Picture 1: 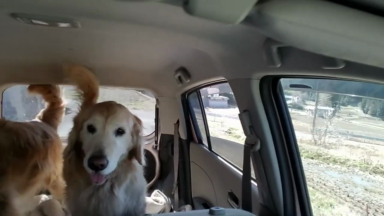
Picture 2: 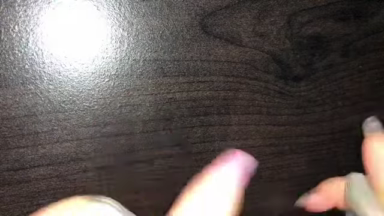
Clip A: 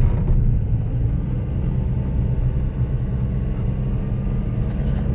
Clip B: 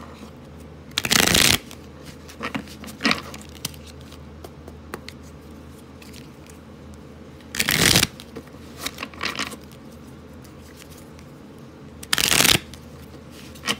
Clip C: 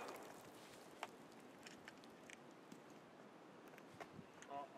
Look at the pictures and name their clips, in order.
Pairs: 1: A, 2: B